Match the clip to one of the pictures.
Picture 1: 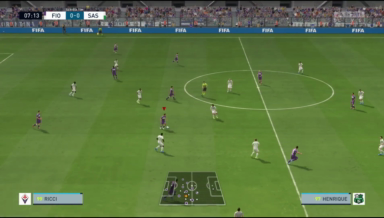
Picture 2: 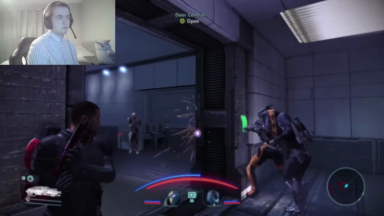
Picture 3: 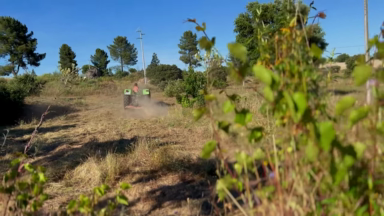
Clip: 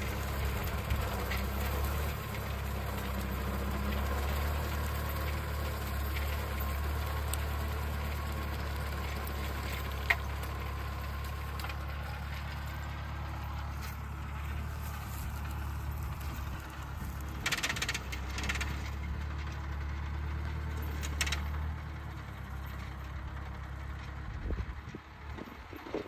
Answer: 3